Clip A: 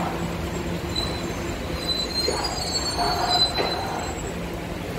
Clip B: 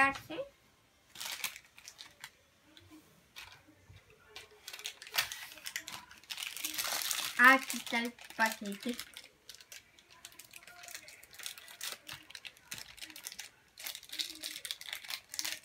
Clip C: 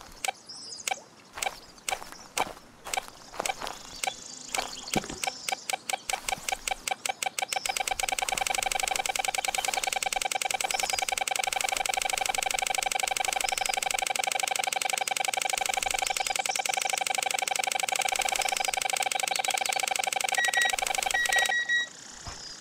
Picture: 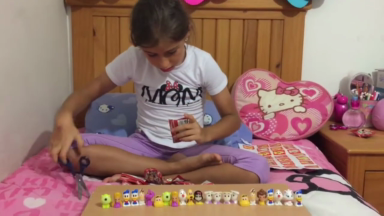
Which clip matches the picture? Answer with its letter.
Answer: B